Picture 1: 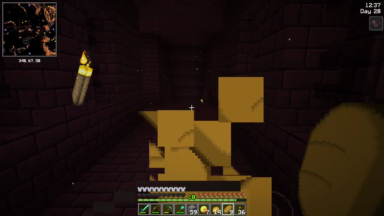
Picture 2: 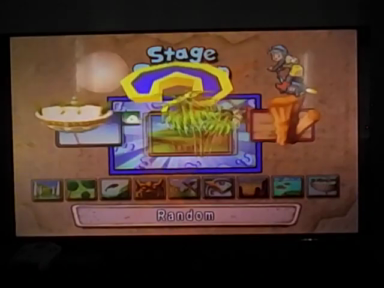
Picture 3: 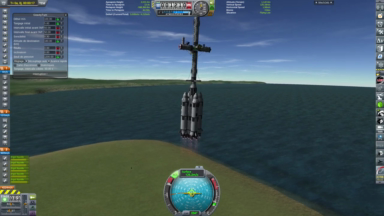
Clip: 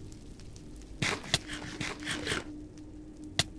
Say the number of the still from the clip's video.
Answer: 1